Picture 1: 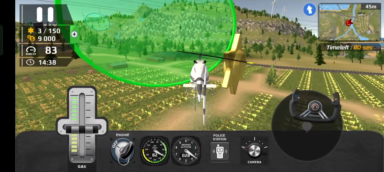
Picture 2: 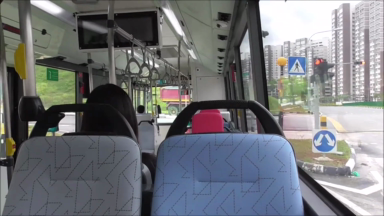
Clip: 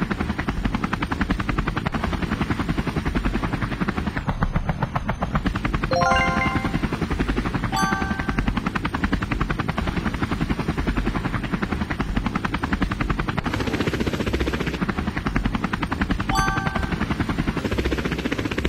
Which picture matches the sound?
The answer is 1